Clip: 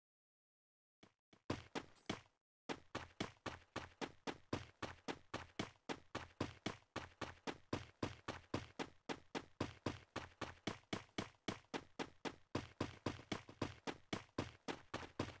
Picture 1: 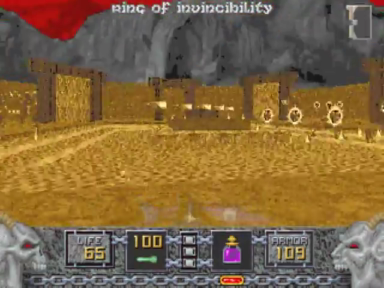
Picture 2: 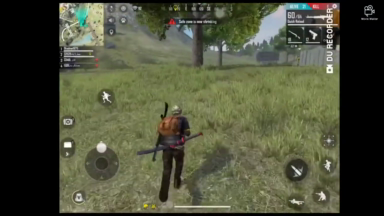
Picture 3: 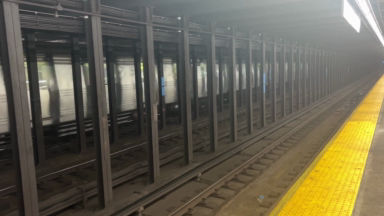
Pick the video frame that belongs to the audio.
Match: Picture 2